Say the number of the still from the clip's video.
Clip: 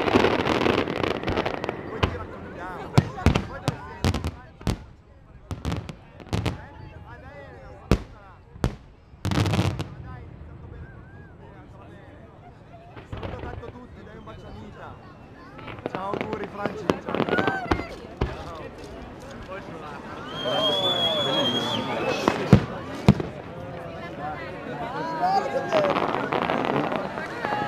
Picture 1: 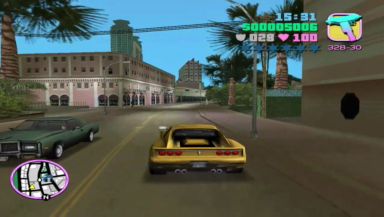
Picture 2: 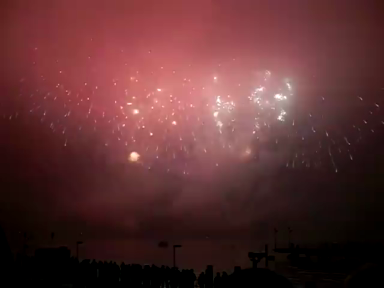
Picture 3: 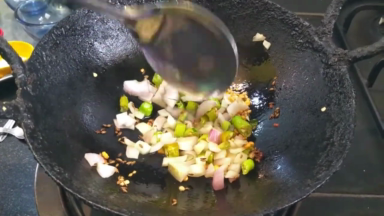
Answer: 2